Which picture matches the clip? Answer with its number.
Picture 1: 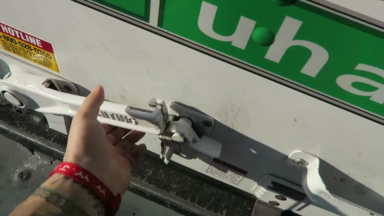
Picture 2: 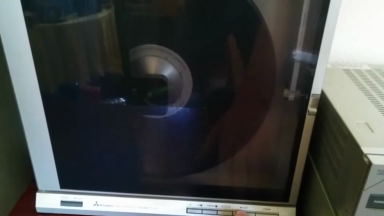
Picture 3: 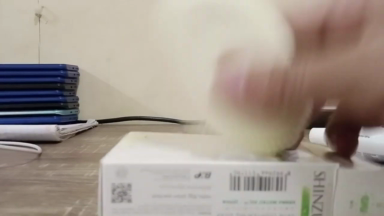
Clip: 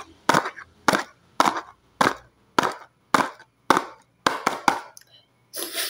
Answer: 3